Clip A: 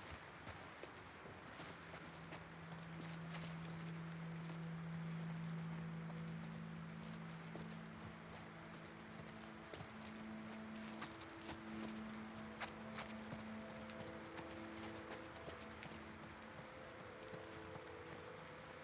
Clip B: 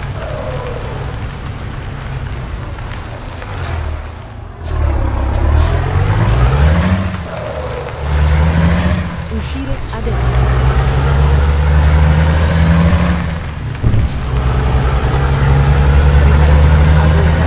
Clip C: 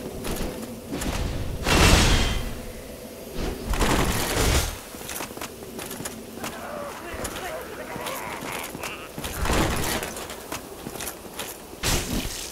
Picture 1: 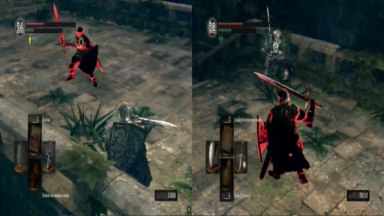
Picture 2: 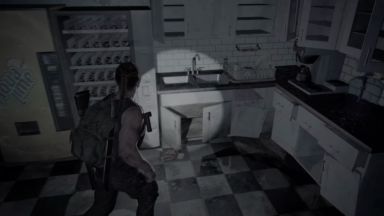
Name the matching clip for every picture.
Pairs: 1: C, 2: A